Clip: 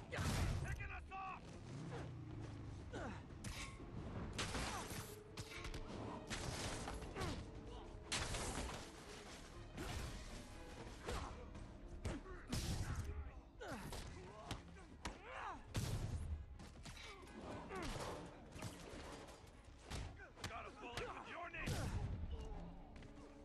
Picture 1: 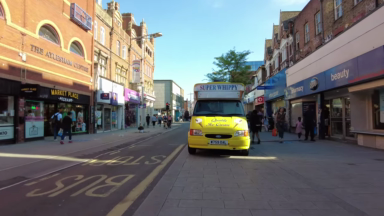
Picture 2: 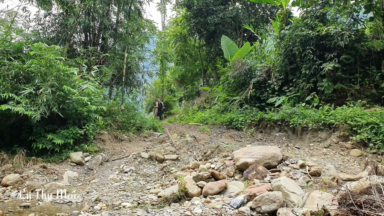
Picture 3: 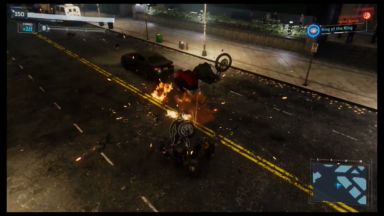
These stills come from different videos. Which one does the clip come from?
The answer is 3